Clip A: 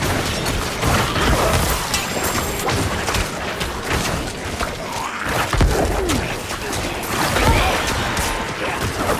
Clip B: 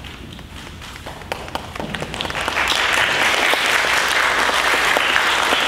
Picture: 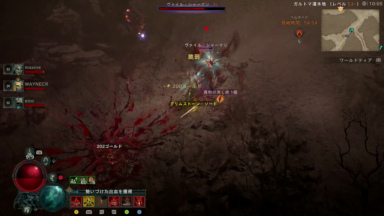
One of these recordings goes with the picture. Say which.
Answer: A